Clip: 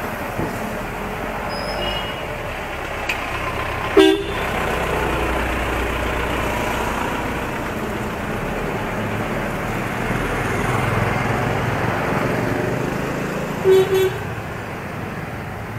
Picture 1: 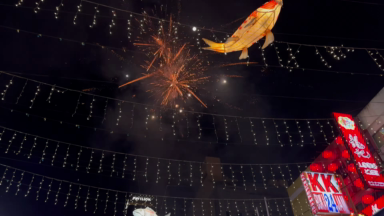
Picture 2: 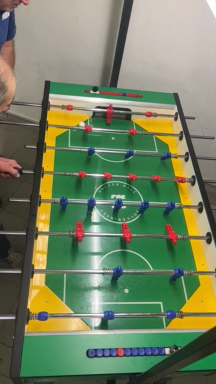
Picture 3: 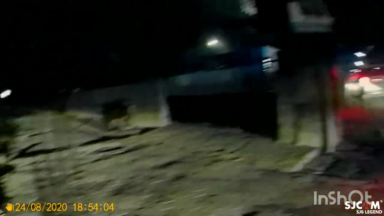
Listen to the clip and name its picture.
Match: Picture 3